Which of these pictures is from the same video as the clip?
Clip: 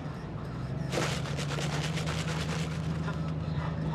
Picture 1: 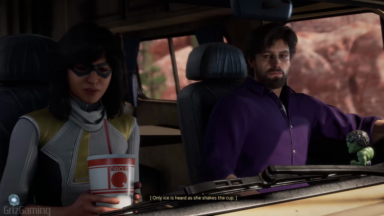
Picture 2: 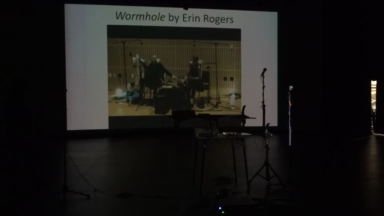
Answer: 1